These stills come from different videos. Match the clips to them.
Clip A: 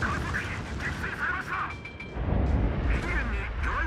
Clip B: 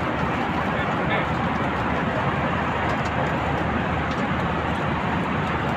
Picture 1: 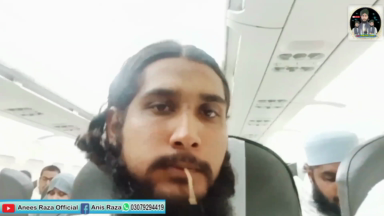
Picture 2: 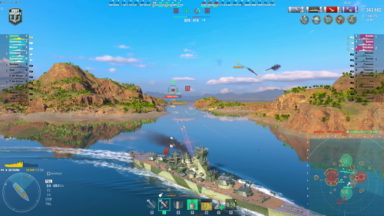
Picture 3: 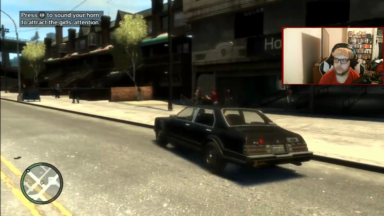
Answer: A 2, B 1